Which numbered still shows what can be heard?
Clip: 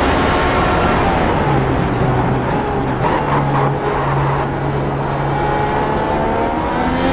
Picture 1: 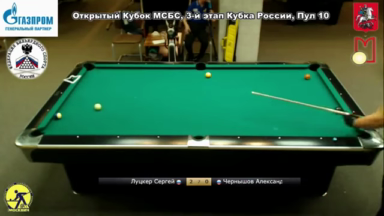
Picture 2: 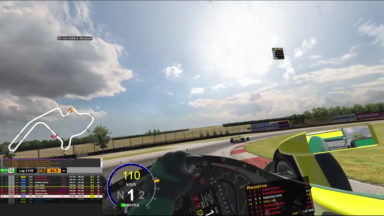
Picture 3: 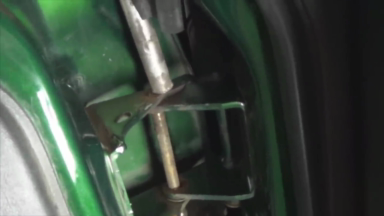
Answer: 2